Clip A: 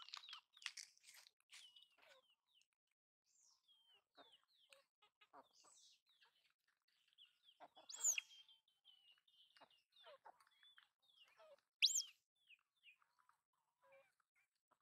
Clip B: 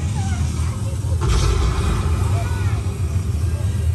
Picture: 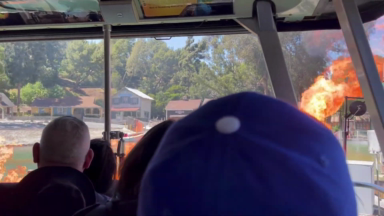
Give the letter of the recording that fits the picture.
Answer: B